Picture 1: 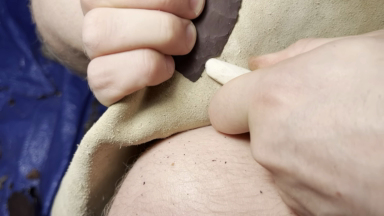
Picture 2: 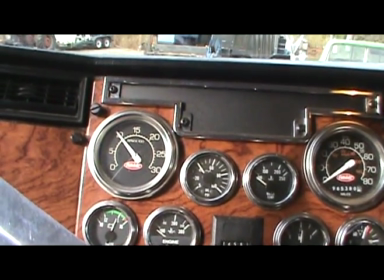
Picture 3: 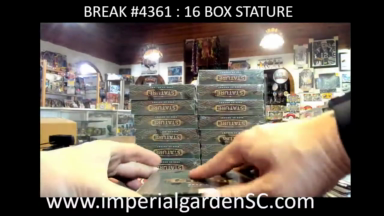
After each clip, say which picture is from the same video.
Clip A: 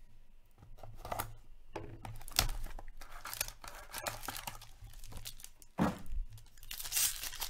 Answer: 3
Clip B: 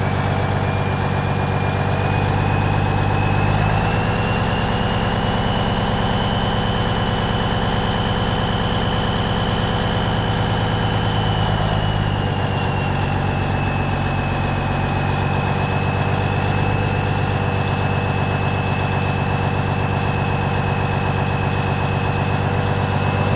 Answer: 2